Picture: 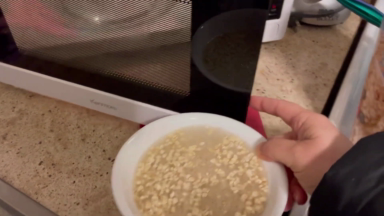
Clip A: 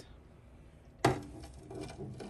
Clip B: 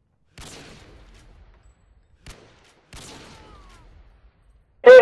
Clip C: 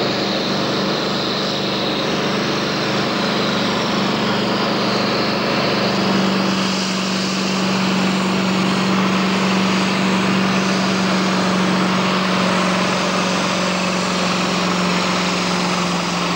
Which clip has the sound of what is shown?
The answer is A